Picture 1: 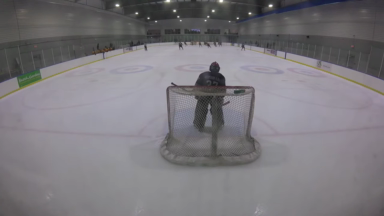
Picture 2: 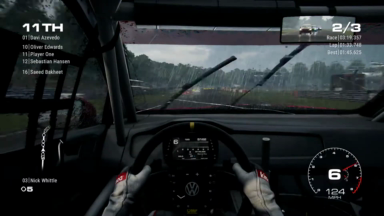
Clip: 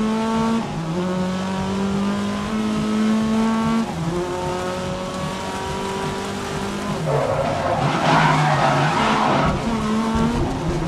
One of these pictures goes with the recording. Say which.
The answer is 2